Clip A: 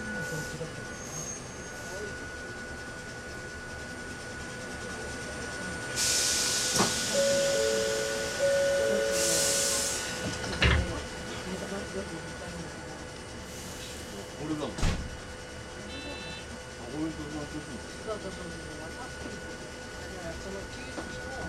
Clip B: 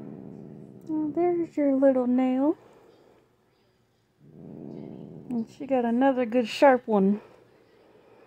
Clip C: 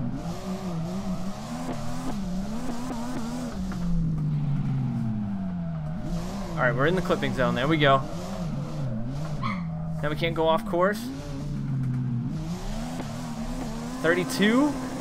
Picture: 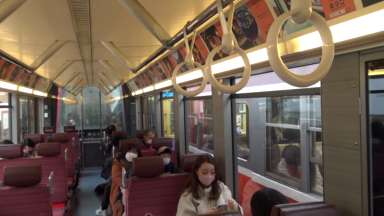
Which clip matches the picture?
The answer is A